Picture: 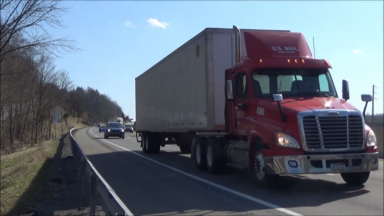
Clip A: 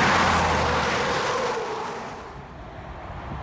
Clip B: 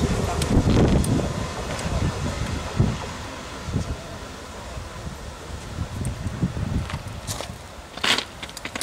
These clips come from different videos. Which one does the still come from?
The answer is A